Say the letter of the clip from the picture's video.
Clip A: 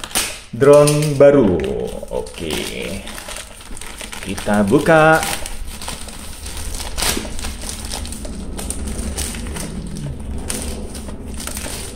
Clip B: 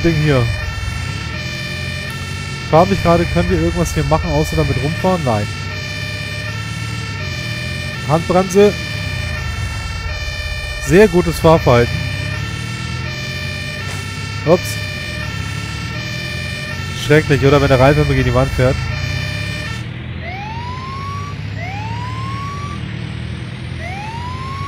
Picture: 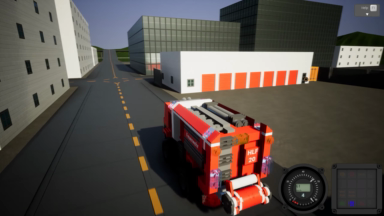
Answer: B